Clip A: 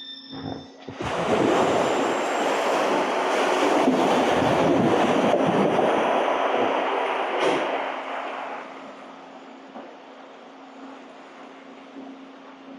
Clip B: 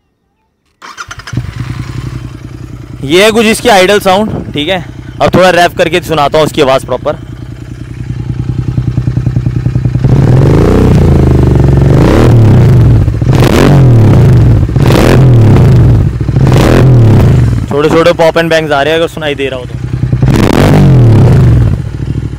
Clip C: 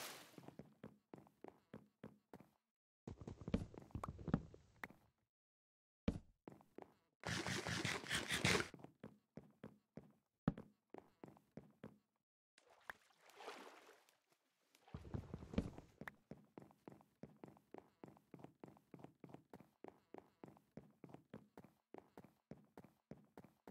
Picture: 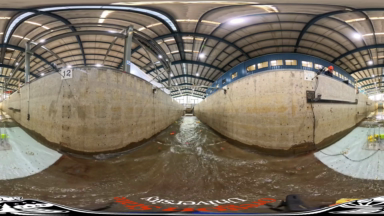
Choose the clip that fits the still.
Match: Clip A